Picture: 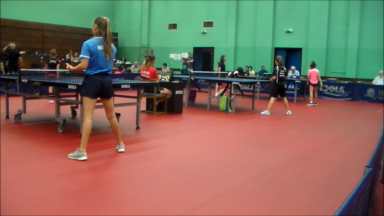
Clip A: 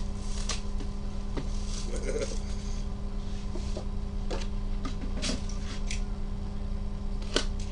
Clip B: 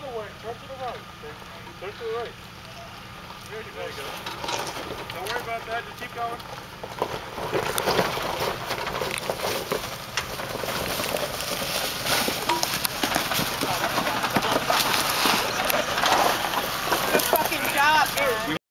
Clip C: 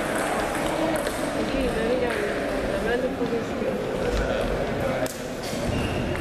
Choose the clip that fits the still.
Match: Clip C